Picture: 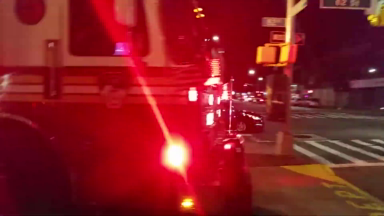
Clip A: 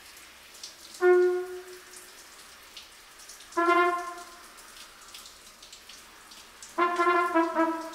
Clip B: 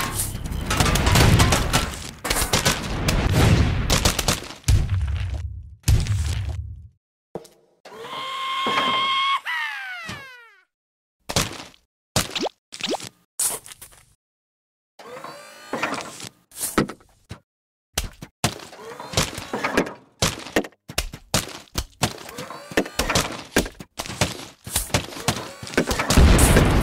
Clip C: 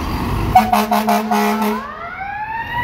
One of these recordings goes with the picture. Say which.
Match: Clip C